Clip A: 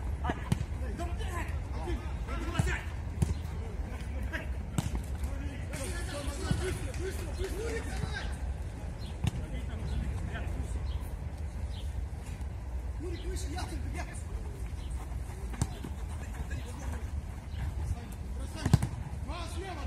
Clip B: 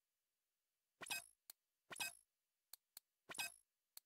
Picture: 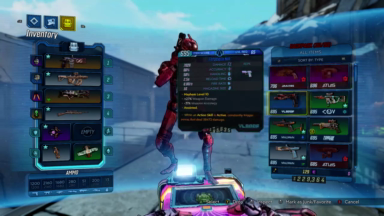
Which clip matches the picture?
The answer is B